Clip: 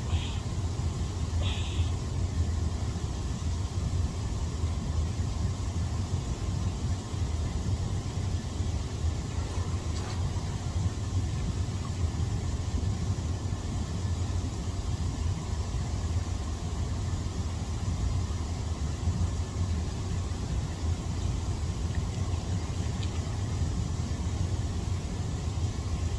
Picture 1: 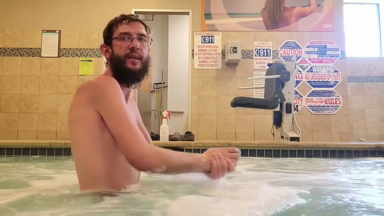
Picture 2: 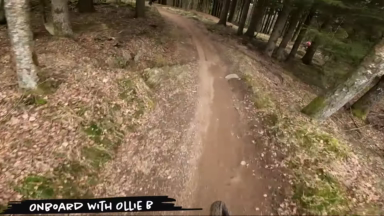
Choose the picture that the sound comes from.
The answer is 1